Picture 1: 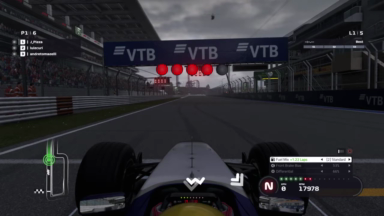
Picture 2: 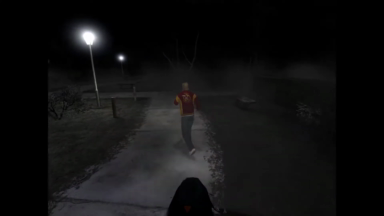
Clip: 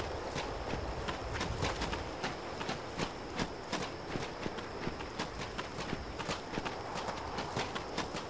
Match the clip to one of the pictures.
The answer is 2